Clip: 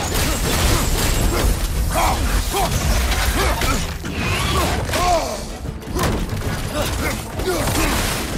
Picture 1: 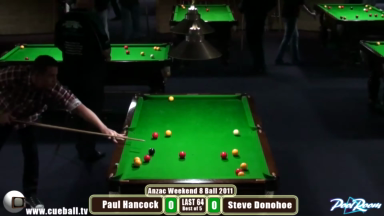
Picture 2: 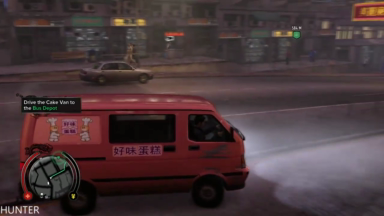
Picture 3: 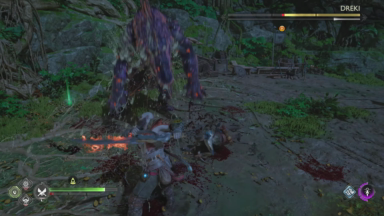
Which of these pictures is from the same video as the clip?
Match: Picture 3